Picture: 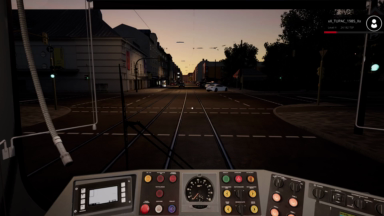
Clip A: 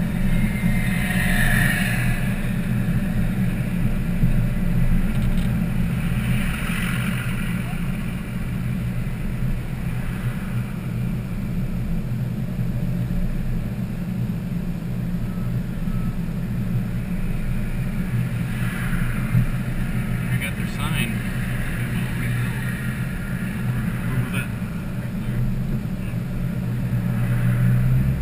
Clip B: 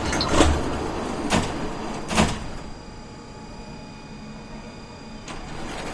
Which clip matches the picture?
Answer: B